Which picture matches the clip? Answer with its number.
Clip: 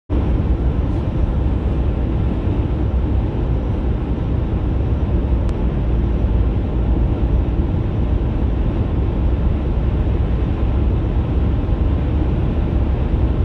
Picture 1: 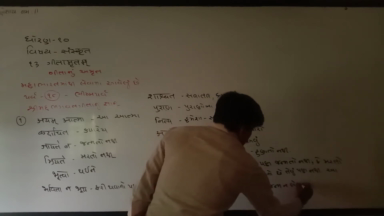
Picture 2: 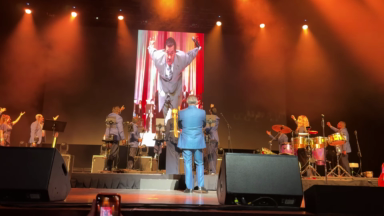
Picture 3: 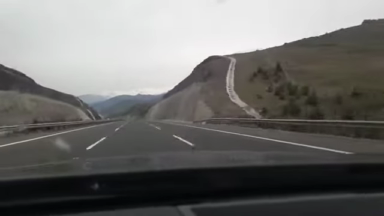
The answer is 3